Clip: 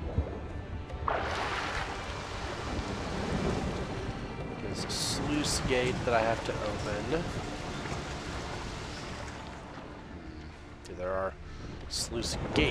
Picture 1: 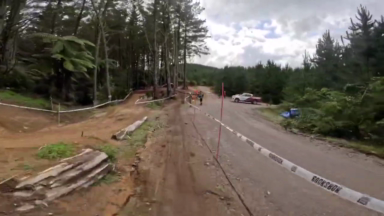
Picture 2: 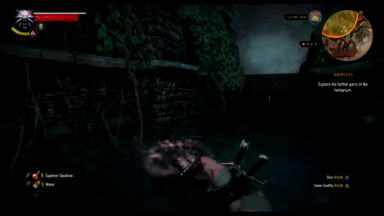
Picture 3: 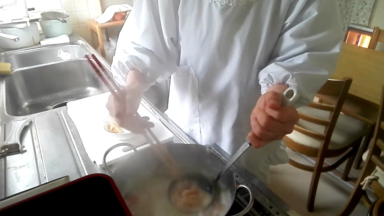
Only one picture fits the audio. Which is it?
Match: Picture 2